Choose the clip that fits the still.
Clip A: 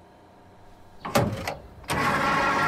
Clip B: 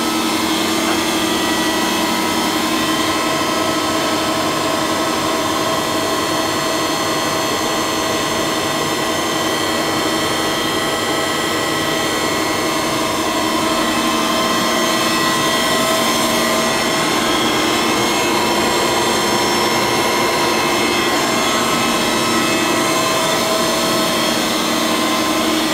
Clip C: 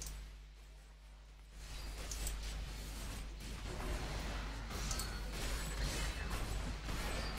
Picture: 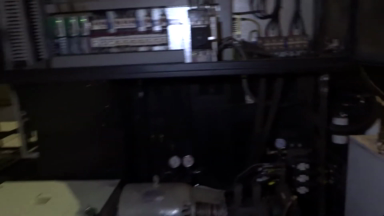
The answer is B